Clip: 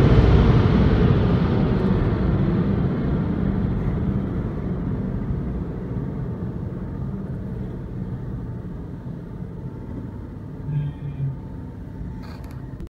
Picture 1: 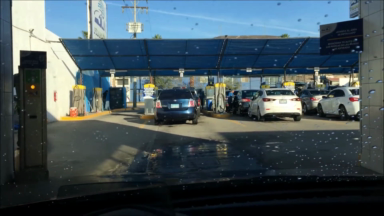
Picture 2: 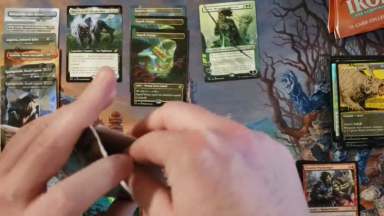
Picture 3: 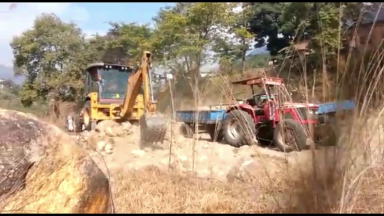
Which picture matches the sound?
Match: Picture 1